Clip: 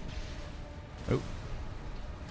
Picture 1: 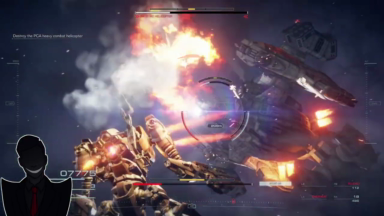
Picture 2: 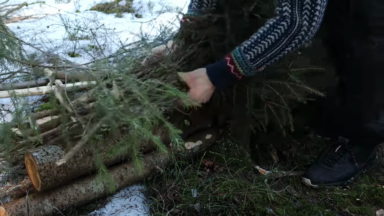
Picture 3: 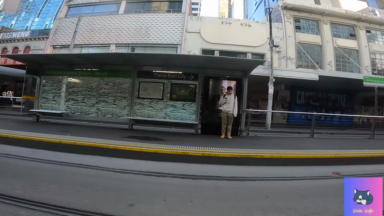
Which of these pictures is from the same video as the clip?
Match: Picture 1